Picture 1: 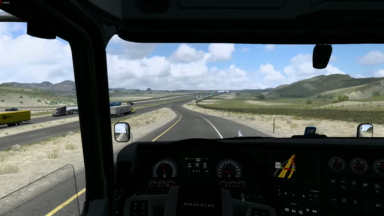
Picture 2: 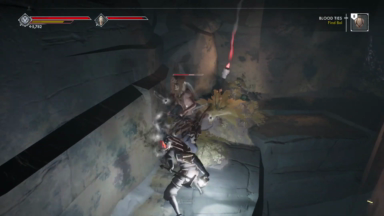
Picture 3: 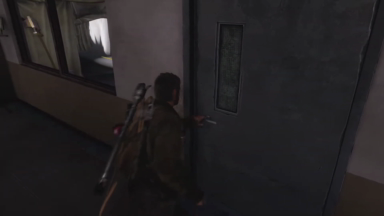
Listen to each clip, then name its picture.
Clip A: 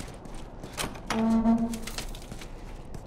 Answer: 3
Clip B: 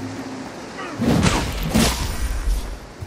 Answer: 2